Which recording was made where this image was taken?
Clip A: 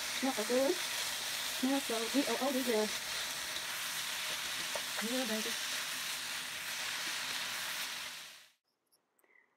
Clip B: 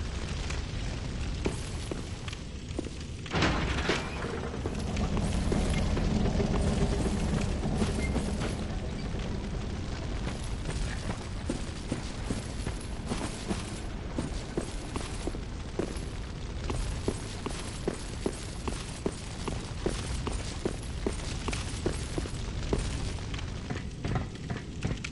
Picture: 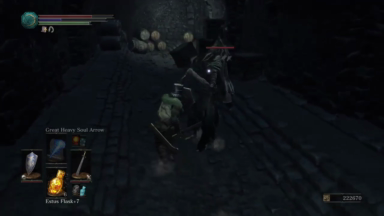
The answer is B